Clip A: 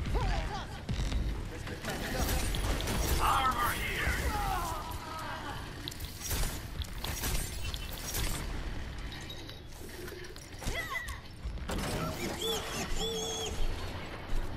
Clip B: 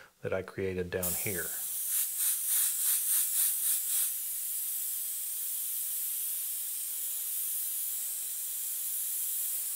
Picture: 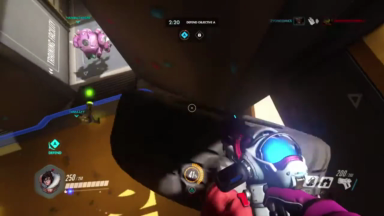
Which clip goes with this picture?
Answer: A